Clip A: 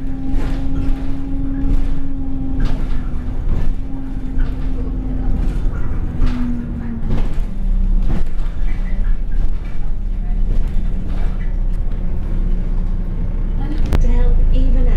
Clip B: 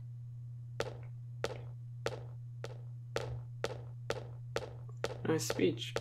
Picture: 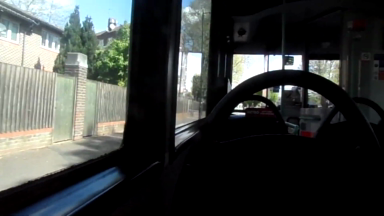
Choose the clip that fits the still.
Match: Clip A